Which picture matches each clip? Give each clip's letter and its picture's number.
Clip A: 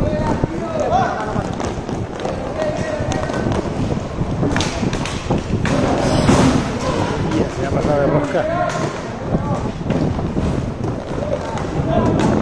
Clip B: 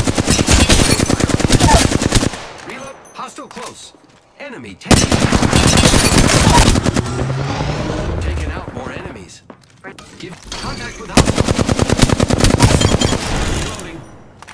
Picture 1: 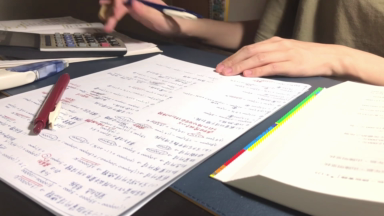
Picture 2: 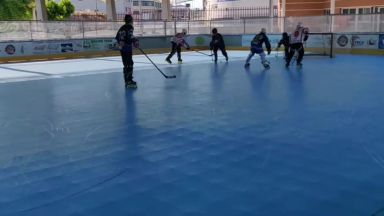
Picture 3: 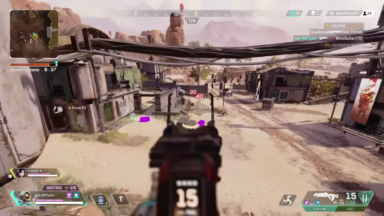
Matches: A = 2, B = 3